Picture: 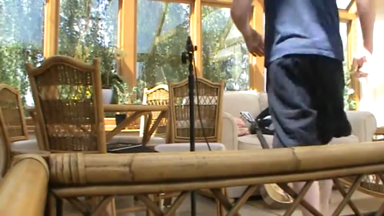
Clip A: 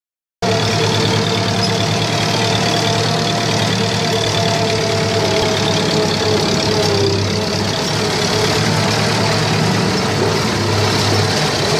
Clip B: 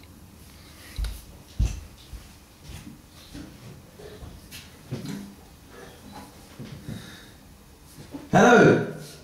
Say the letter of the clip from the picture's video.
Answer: B